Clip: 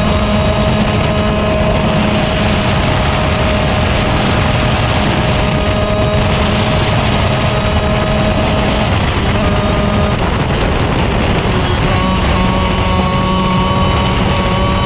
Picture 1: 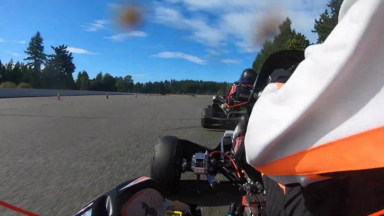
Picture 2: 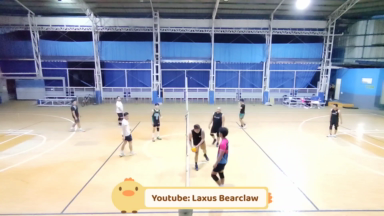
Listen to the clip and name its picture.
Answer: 1